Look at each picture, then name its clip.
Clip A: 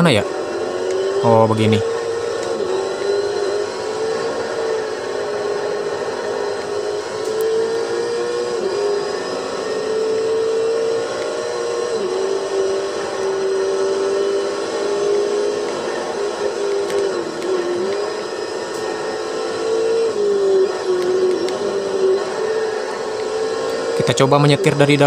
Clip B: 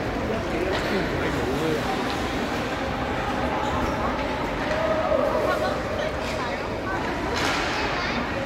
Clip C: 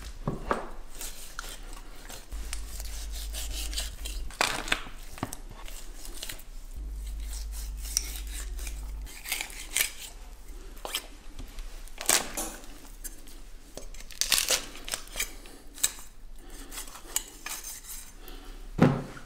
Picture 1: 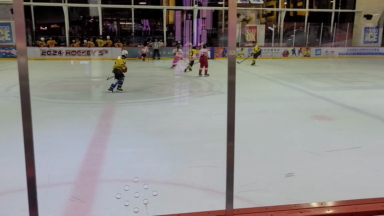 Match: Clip B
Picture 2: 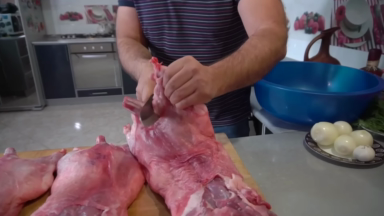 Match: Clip C